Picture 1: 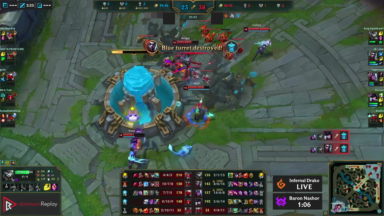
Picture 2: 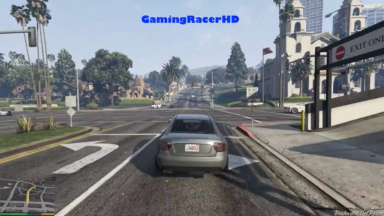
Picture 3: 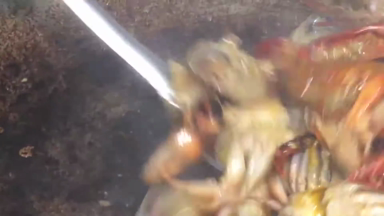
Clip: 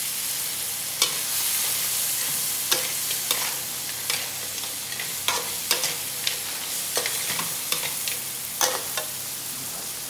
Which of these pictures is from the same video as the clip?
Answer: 3